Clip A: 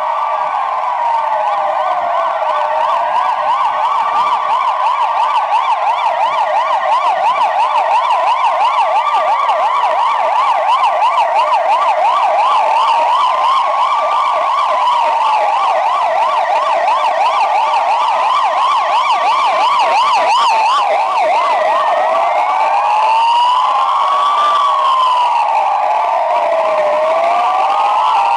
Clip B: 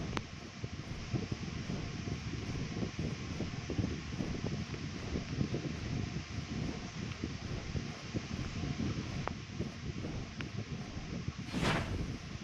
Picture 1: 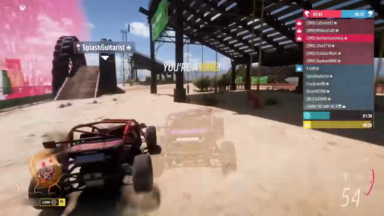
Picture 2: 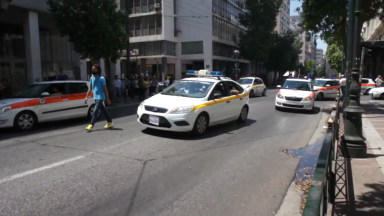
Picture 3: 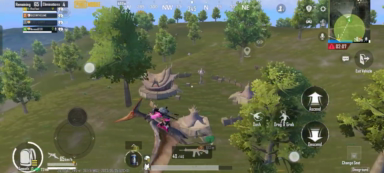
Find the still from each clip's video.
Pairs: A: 2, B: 3